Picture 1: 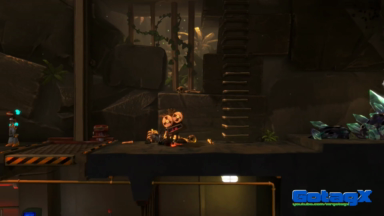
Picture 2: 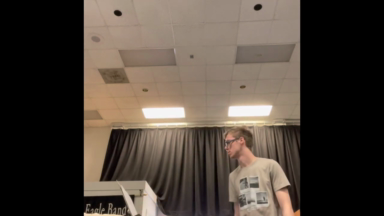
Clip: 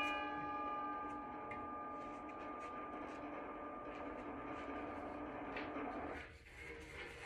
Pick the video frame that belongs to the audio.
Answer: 2